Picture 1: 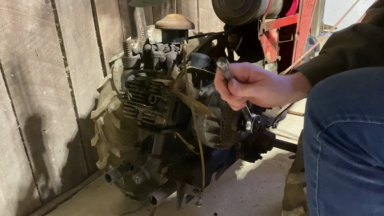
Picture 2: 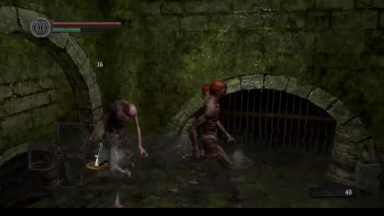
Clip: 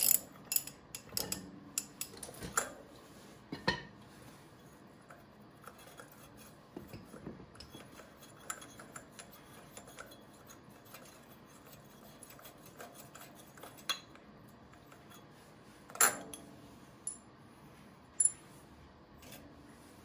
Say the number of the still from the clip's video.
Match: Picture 1